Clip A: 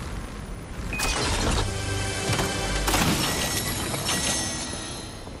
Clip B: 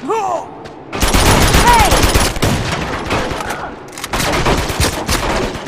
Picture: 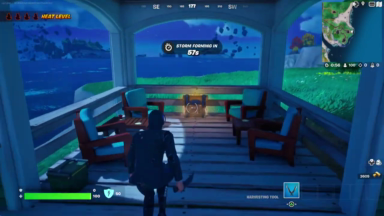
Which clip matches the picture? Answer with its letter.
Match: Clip A